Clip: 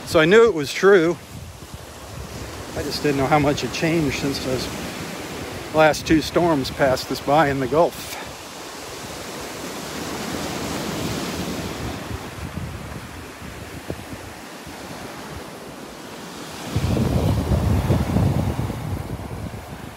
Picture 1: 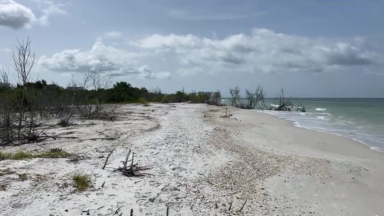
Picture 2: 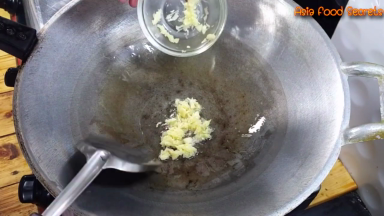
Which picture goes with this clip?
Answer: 1